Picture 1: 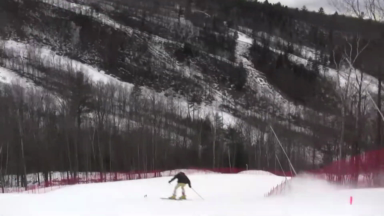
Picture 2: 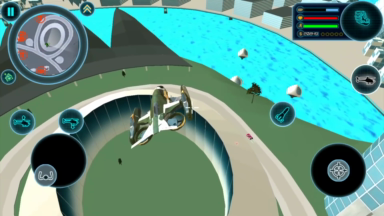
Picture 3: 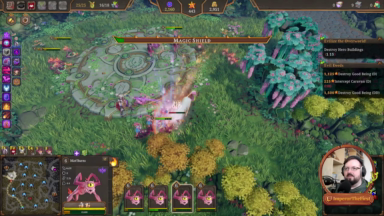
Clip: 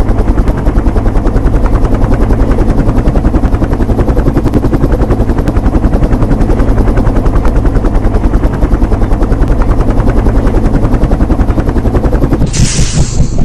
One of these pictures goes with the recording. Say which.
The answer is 2